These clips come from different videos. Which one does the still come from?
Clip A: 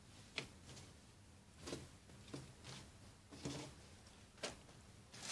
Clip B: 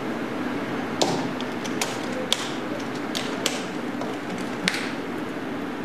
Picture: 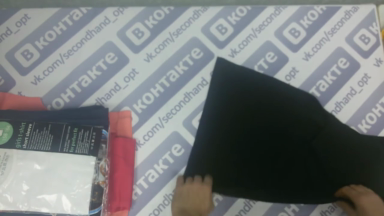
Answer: A